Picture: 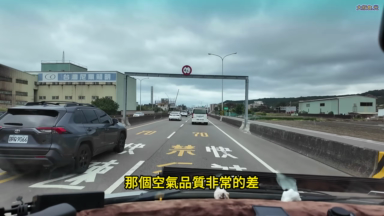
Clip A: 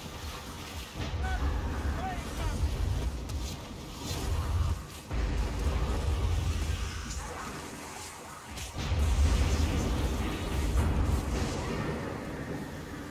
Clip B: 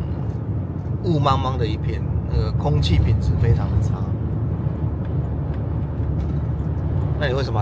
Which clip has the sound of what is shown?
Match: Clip B